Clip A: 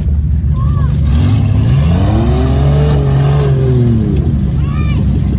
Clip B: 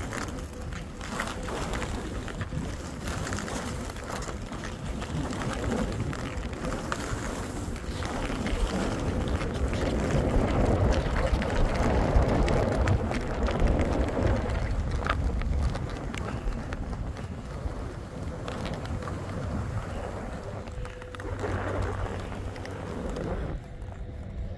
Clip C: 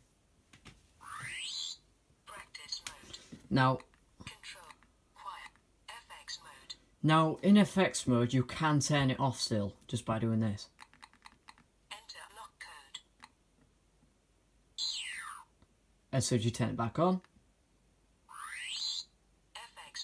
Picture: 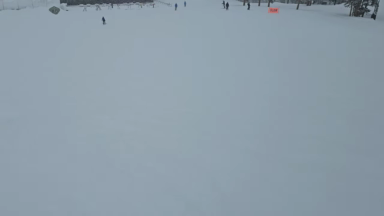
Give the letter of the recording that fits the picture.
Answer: B